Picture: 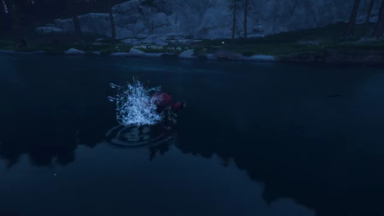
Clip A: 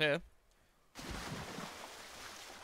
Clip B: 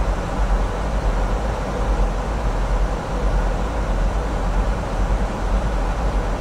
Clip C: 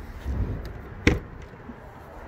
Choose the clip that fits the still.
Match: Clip A